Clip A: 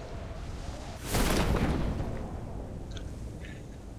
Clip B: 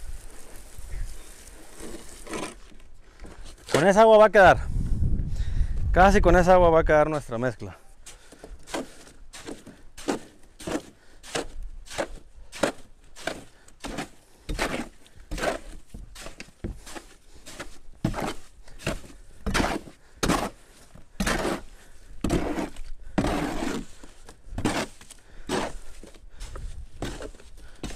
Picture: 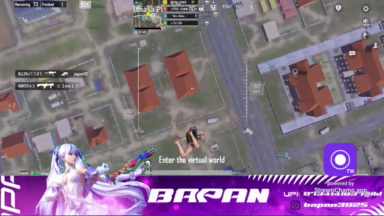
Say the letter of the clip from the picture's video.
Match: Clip A